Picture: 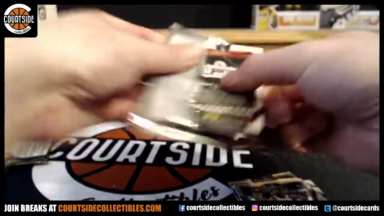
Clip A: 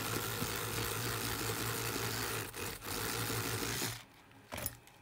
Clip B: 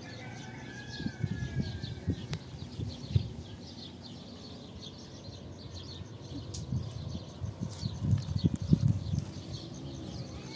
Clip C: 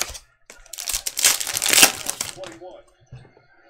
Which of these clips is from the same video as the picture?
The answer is C